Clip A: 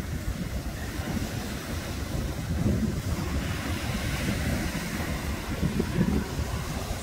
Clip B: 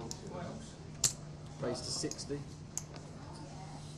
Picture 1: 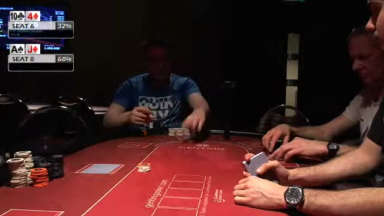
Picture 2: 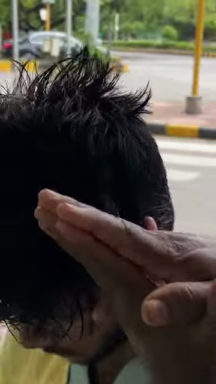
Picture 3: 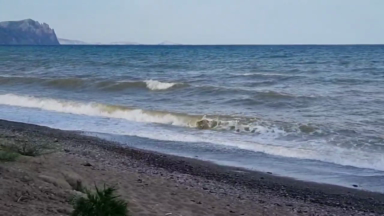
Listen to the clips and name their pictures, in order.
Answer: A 3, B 1